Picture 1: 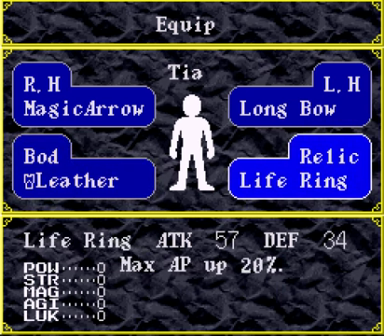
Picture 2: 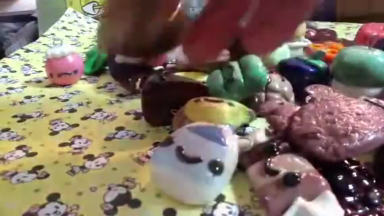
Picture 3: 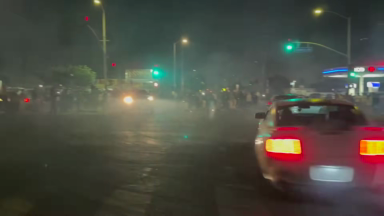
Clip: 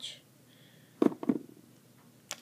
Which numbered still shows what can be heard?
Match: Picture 2